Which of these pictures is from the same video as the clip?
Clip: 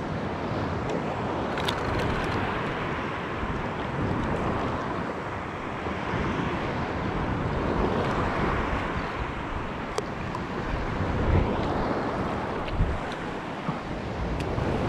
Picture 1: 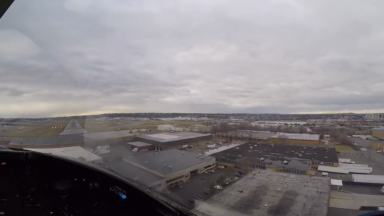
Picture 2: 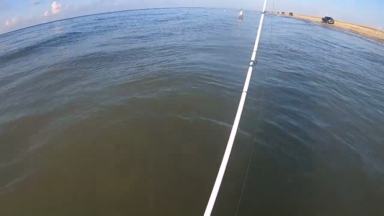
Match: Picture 2